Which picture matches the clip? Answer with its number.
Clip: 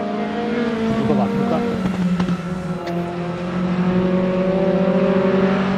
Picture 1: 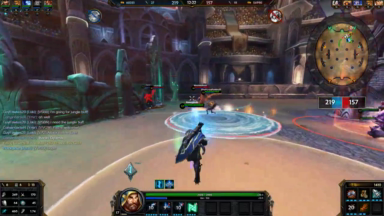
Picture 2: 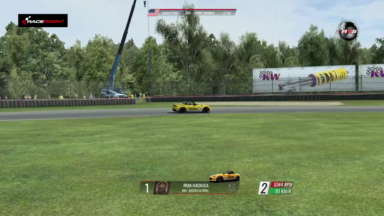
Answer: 2